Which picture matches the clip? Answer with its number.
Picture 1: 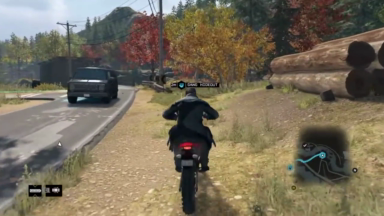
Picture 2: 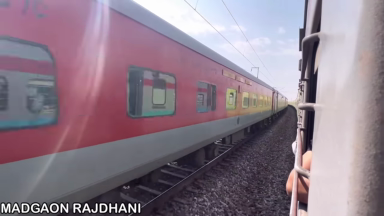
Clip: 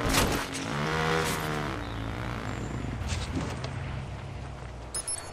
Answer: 1